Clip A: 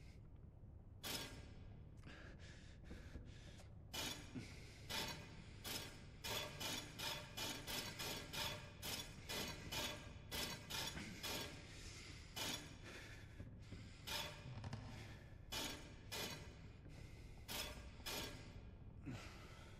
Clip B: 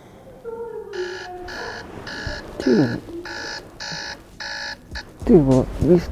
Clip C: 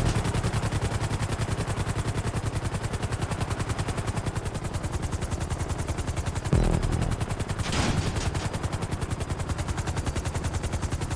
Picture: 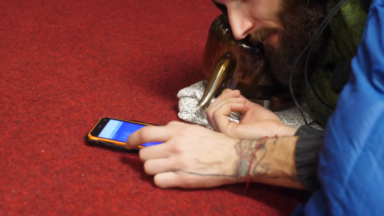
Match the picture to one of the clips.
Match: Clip B